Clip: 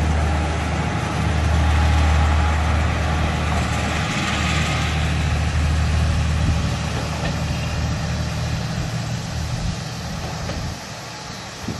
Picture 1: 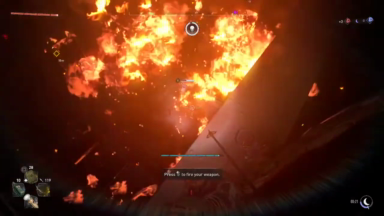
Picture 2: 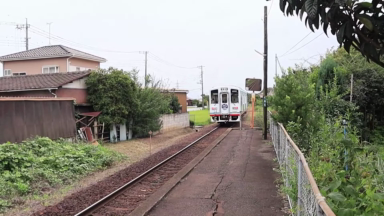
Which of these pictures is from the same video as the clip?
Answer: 2